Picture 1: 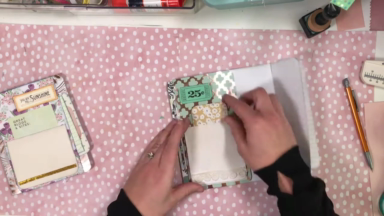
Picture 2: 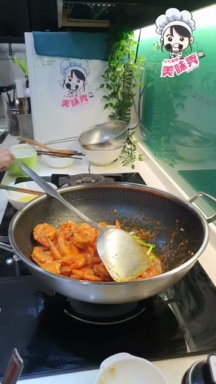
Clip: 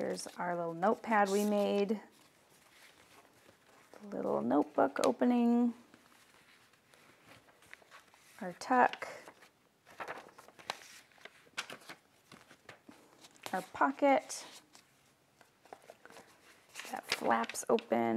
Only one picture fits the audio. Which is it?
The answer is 1